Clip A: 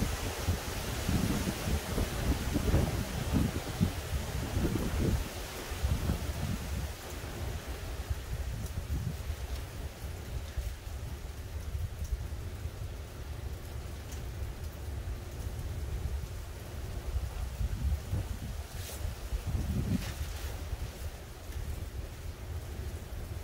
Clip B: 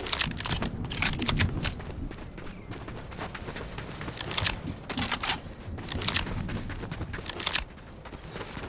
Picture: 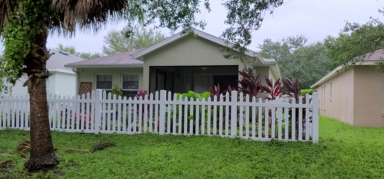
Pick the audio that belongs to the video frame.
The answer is A